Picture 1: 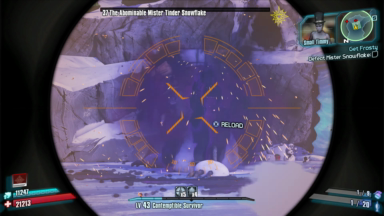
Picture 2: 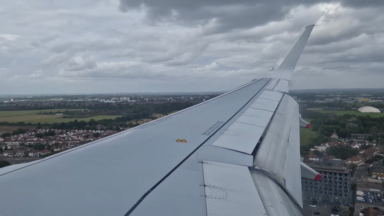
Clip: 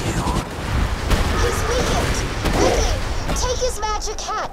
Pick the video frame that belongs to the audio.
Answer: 1